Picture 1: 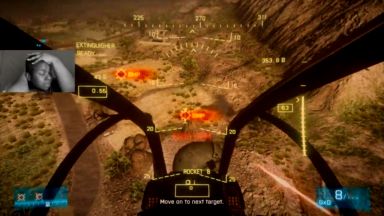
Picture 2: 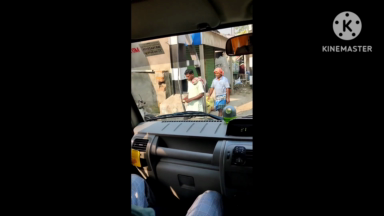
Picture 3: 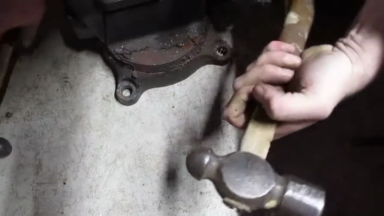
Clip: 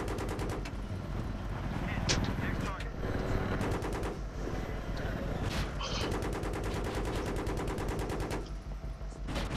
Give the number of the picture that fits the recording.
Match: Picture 1